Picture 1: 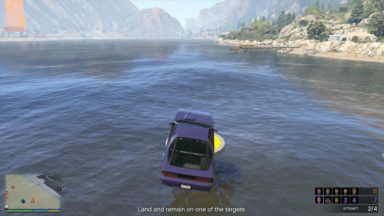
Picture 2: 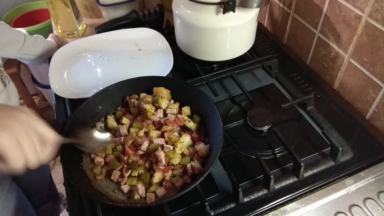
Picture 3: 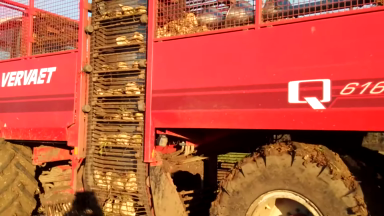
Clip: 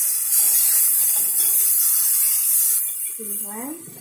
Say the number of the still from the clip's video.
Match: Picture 2